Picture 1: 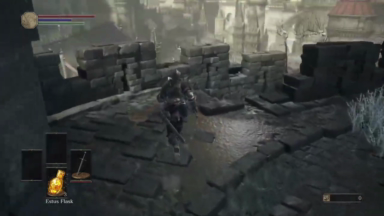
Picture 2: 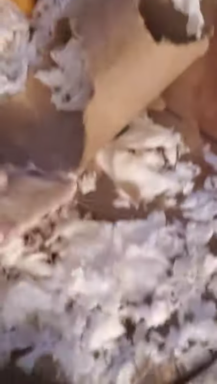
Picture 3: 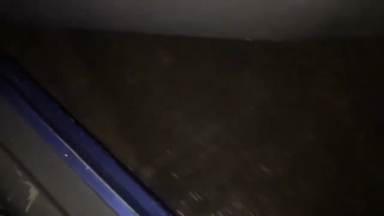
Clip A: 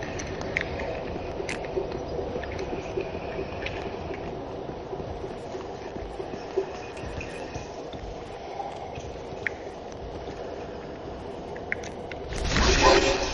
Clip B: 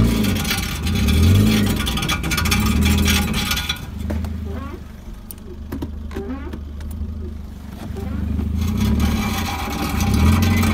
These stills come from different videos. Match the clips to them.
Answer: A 1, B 3